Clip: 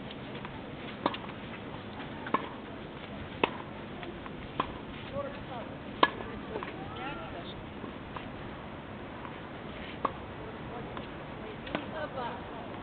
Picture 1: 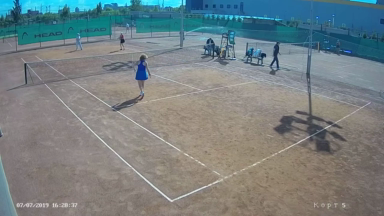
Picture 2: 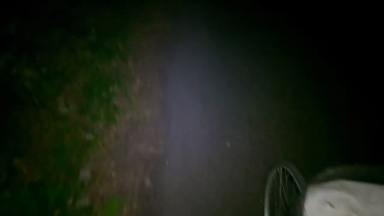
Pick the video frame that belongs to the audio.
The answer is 1